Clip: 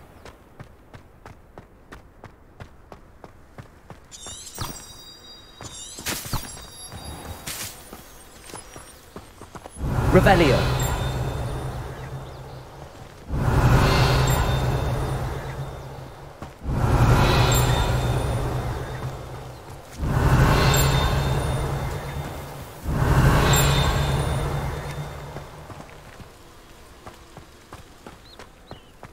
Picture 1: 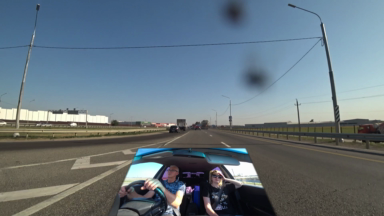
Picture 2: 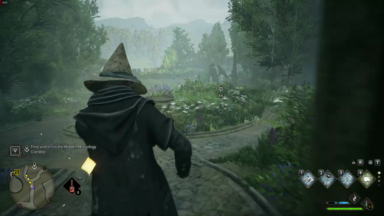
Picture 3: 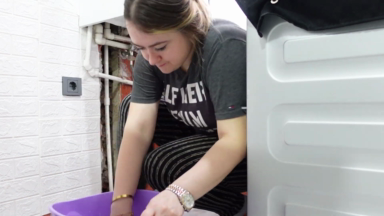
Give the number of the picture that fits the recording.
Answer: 2